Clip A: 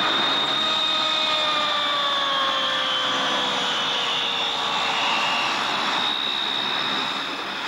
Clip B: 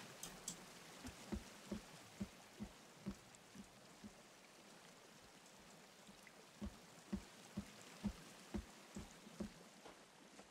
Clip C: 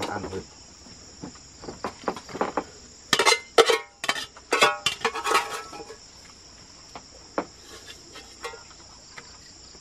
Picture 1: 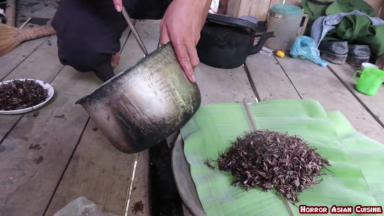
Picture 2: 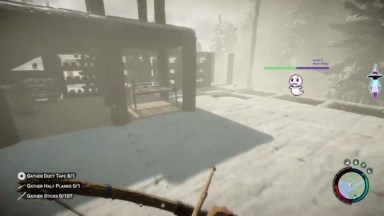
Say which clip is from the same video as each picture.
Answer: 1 C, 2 B